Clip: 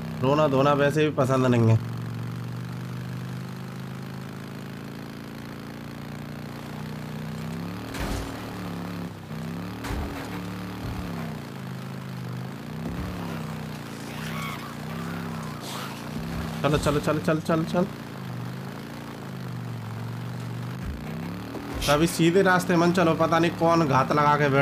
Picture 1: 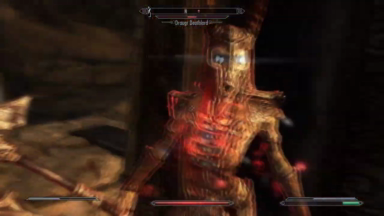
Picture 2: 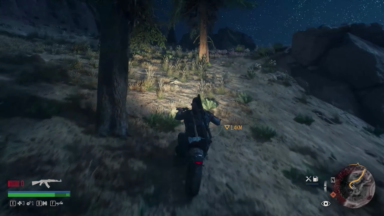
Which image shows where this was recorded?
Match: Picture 2